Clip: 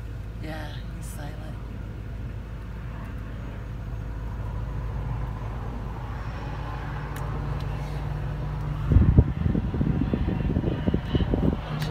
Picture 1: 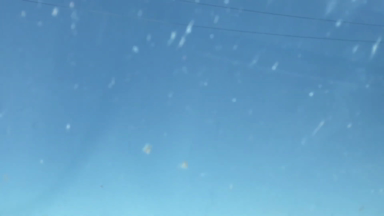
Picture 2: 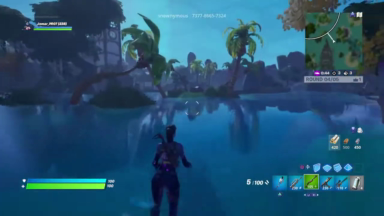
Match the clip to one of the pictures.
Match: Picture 1